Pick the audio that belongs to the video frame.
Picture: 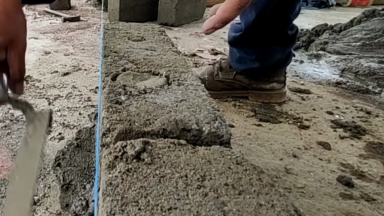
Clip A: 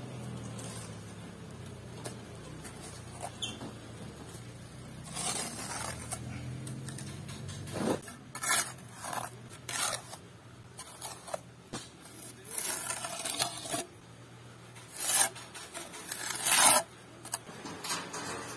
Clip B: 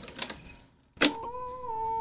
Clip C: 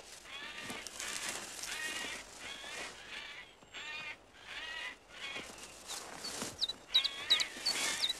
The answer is A